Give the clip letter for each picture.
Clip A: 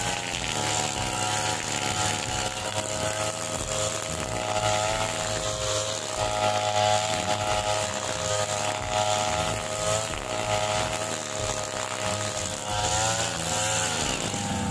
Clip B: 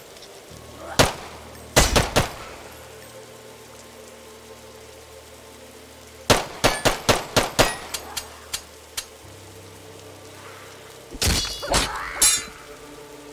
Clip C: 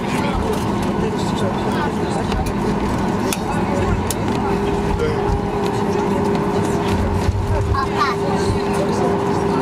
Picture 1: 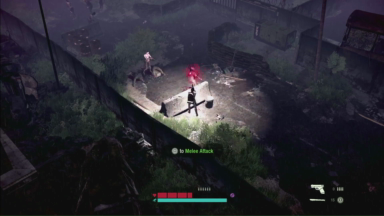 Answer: B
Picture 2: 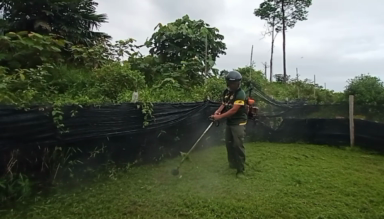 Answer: A